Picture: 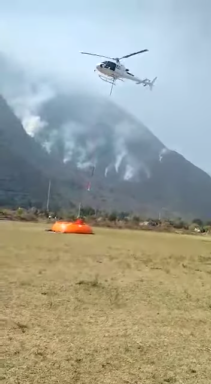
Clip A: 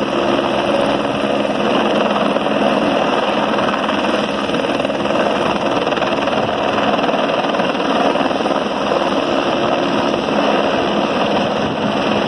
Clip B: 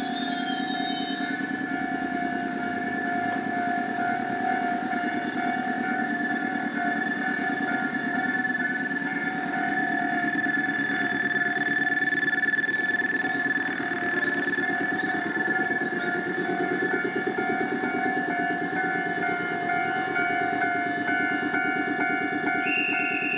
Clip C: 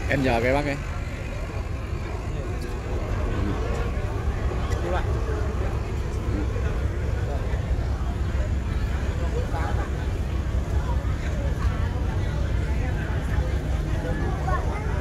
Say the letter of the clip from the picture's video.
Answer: A